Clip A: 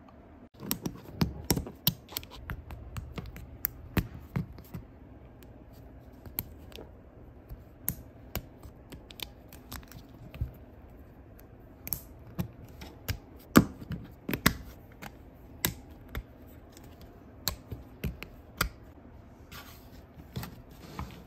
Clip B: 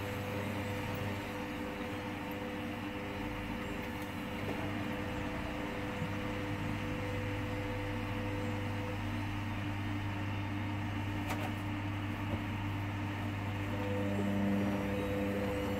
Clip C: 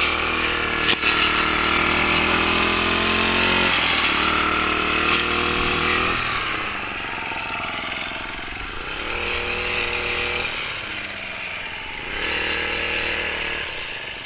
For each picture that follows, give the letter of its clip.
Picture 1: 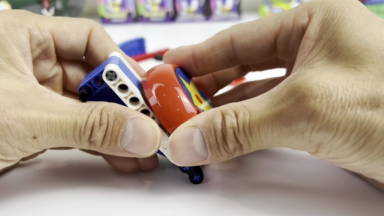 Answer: A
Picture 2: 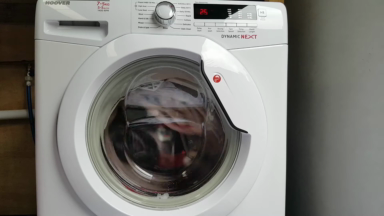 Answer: B